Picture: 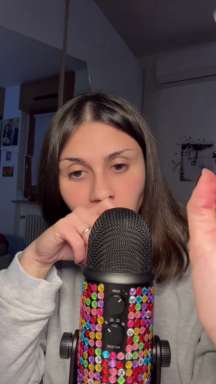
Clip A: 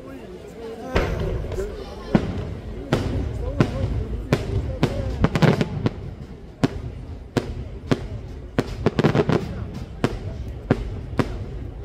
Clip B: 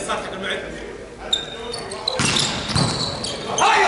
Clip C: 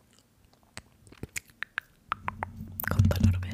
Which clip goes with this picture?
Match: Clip C